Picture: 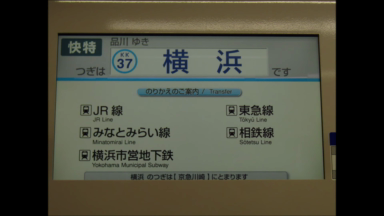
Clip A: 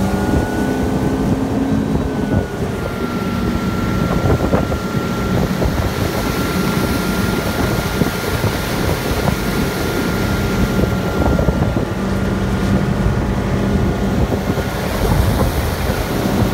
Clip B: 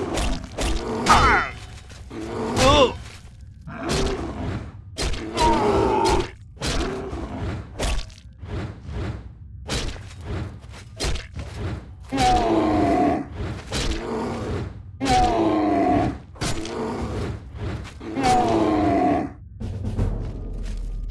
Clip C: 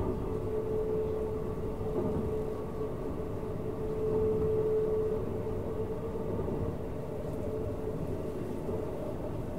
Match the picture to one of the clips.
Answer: C